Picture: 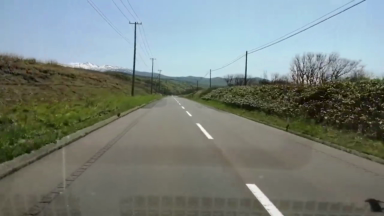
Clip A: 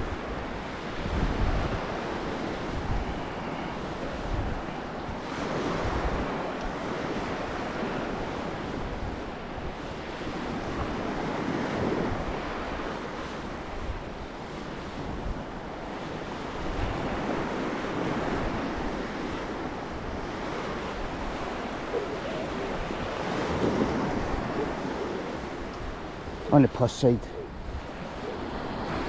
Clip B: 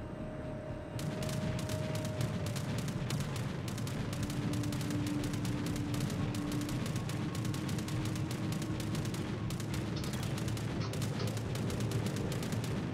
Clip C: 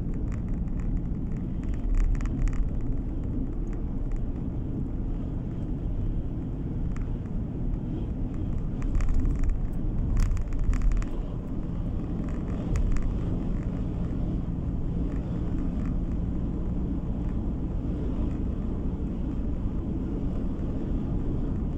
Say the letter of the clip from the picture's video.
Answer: C